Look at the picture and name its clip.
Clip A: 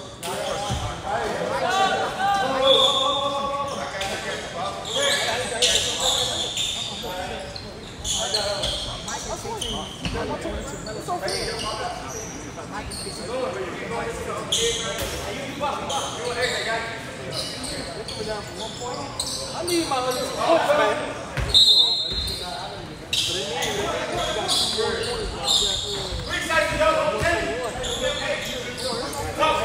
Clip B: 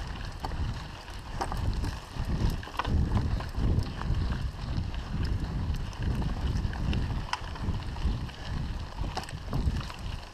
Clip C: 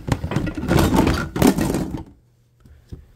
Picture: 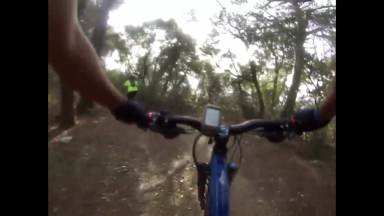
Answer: B